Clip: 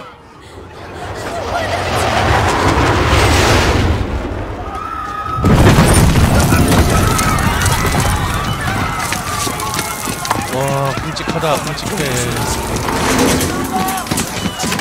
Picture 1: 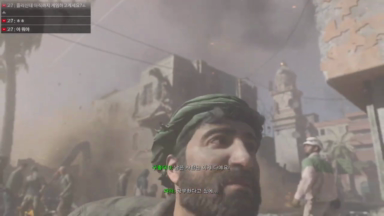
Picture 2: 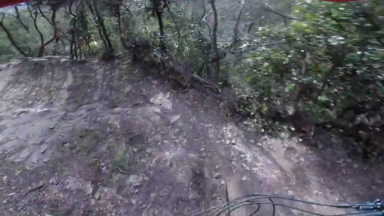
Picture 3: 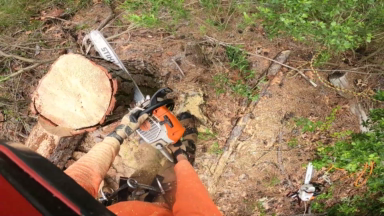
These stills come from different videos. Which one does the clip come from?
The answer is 1